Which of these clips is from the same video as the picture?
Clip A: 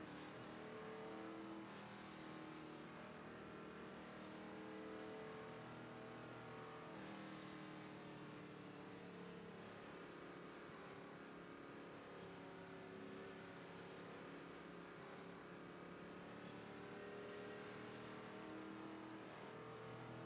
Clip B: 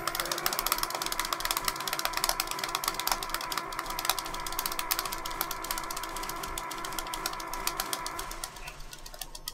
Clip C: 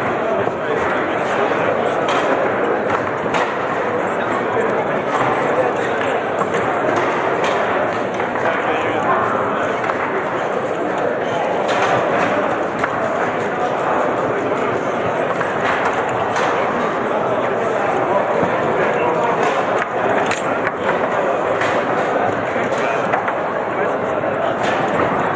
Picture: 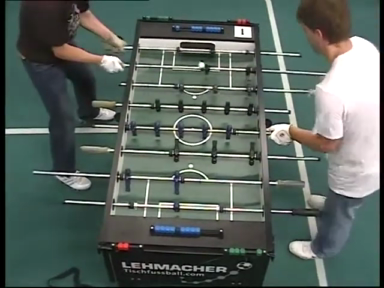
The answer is C